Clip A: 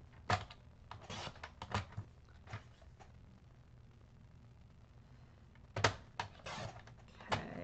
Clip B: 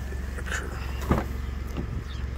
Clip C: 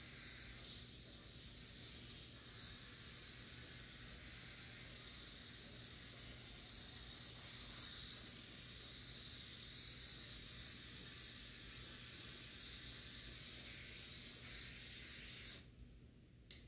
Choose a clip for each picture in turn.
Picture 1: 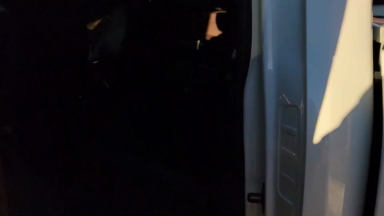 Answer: B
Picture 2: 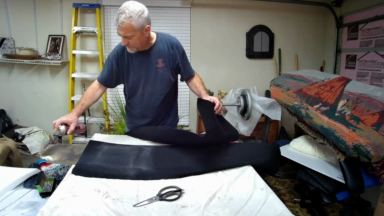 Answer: C